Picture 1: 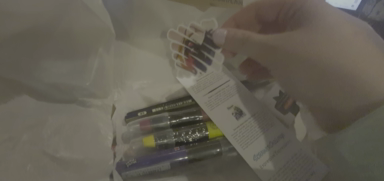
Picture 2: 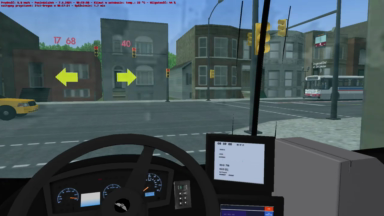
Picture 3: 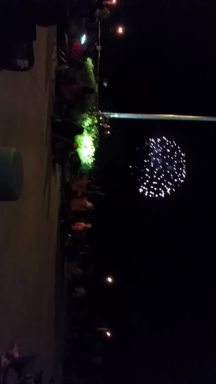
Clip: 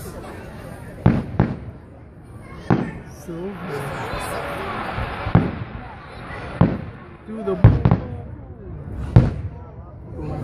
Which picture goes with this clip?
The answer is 3